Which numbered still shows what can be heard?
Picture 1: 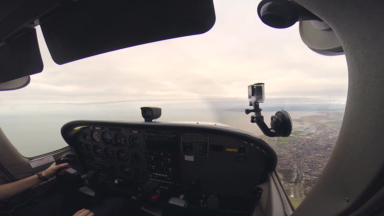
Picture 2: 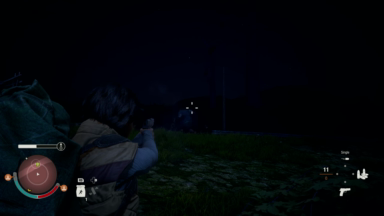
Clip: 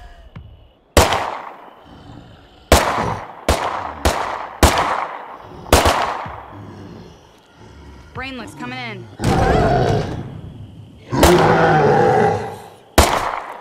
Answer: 2